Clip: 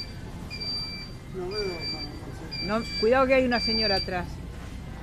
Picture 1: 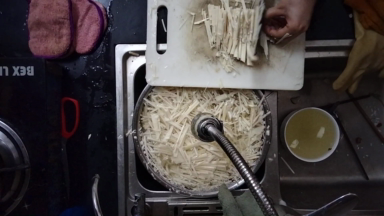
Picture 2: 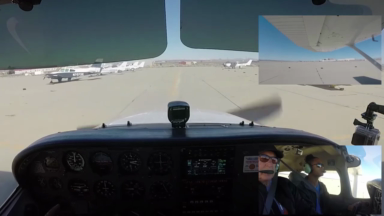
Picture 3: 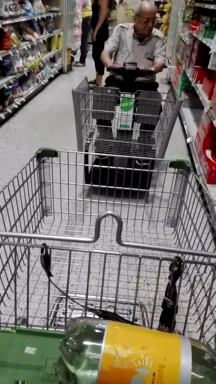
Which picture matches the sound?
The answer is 3